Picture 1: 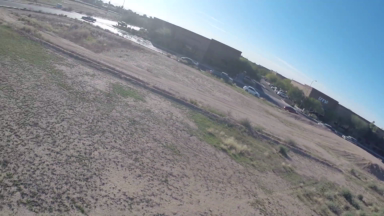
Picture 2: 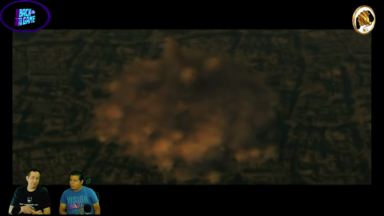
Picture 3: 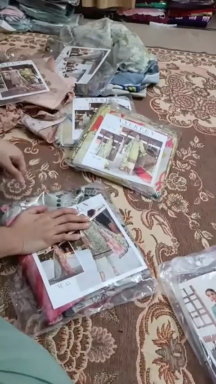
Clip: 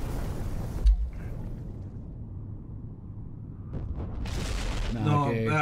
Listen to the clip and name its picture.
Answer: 2